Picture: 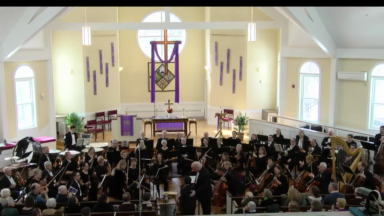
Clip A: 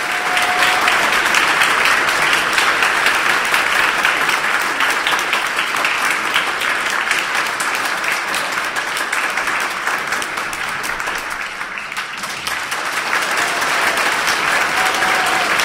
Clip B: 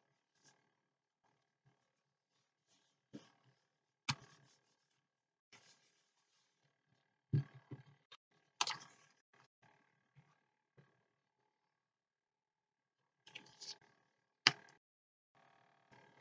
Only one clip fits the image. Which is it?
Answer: A